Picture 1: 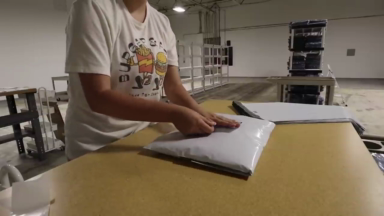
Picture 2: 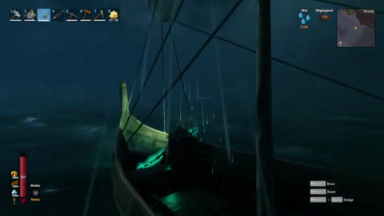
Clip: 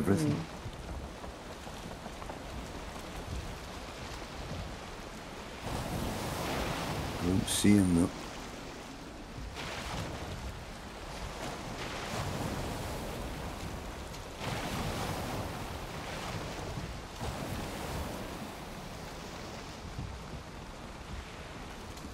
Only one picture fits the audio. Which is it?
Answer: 2